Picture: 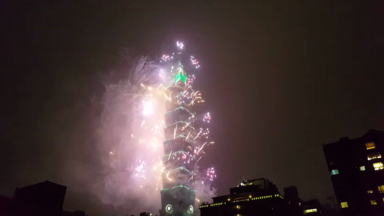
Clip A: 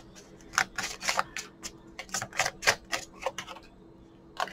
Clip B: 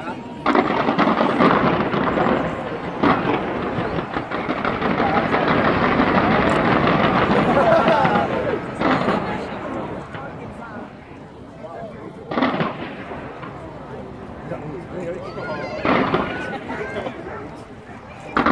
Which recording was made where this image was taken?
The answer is B